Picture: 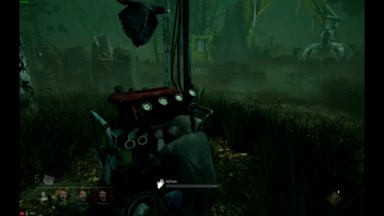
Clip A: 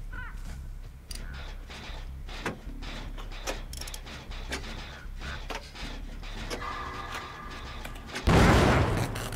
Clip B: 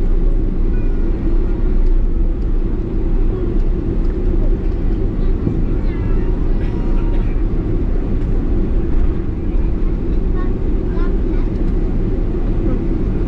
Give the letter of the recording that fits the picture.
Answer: A